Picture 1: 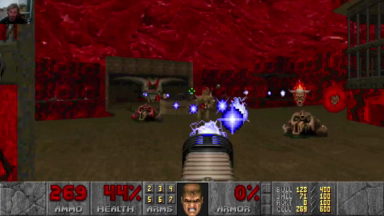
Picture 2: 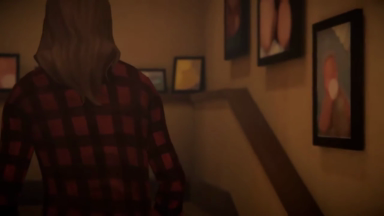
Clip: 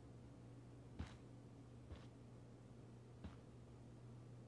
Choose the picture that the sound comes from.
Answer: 2